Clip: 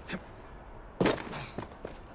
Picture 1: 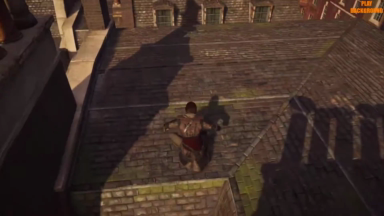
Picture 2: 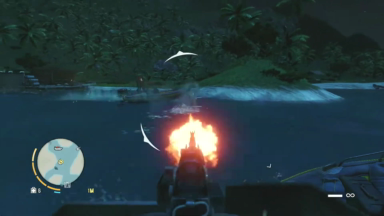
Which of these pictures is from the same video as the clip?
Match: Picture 1